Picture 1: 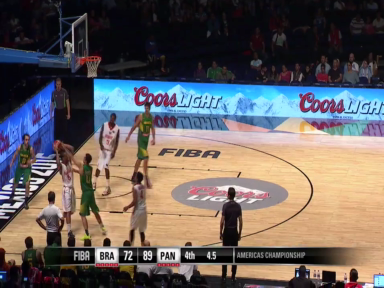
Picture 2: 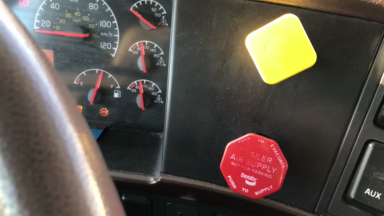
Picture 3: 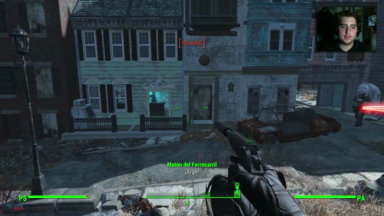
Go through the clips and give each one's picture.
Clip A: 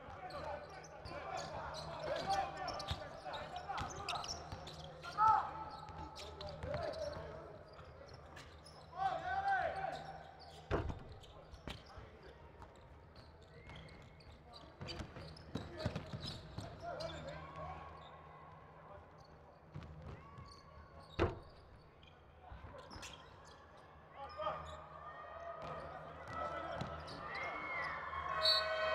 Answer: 1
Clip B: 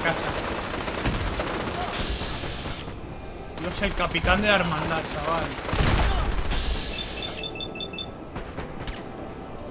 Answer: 3